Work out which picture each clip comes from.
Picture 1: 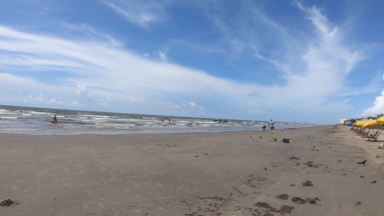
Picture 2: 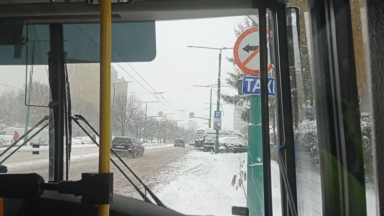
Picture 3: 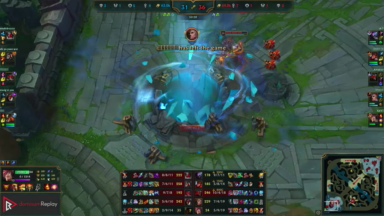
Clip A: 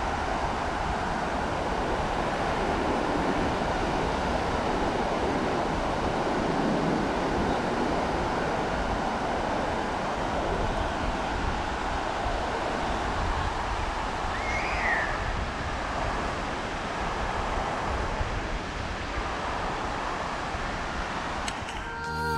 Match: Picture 1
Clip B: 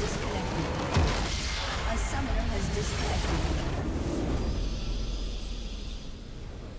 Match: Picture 3